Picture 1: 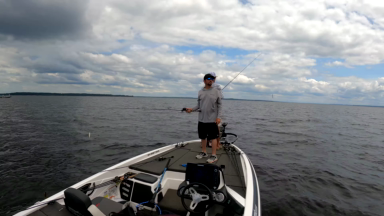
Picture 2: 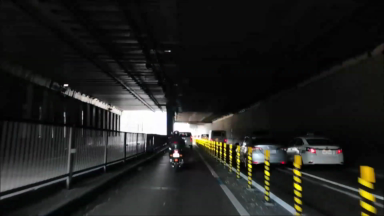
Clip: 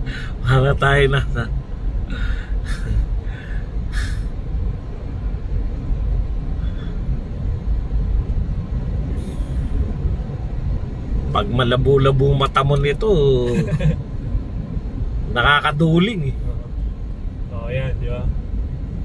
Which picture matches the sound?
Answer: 2